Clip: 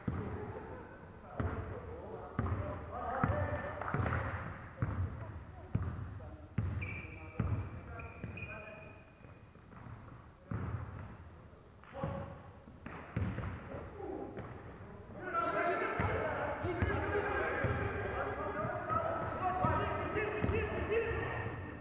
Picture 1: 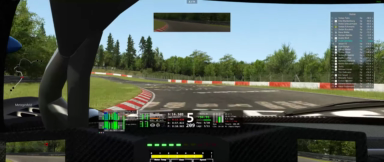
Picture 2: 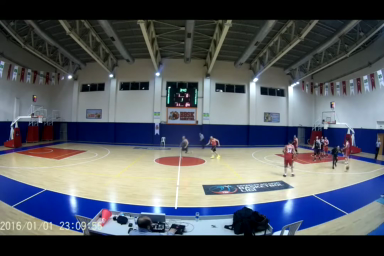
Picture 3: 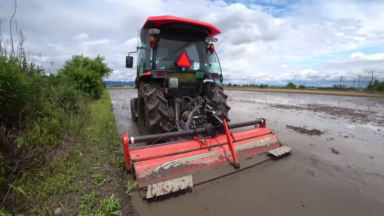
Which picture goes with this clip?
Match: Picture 2